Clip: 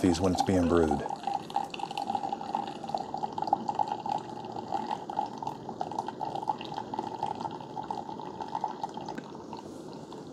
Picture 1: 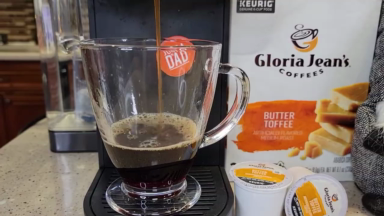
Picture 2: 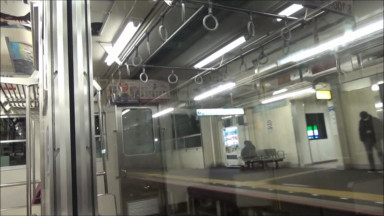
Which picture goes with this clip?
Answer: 1